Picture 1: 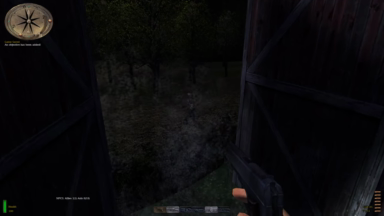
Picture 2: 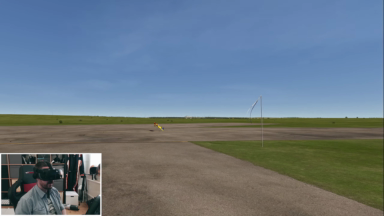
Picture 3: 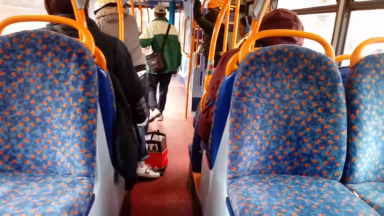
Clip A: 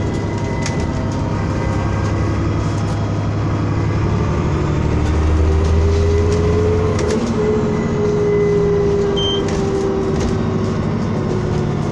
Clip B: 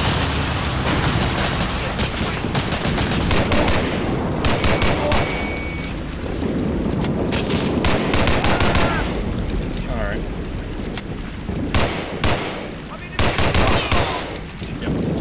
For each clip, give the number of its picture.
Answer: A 3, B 1